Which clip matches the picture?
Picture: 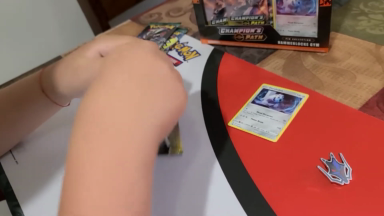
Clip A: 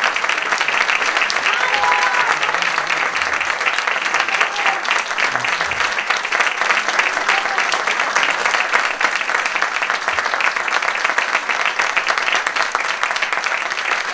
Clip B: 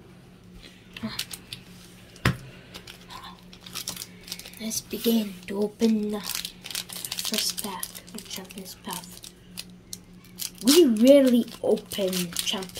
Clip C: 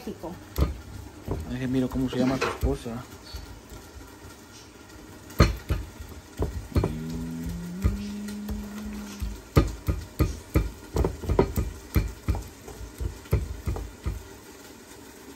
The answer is B